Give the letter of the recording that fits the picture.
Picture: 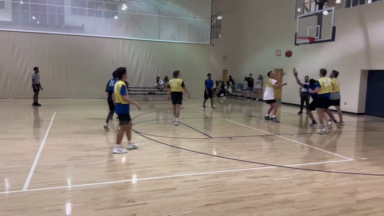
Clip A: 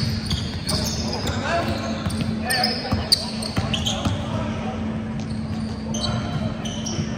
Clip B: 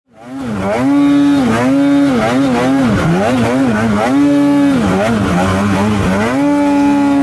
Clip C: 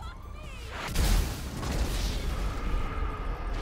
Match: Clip A